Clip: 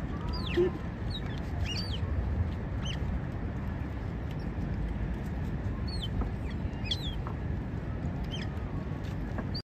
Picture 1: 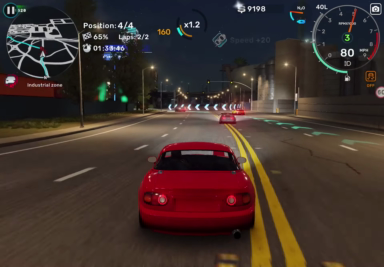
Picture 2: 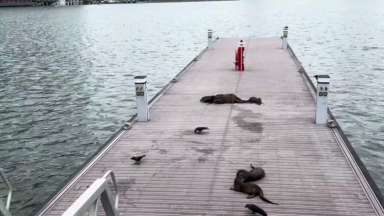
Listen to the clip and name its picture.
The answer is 2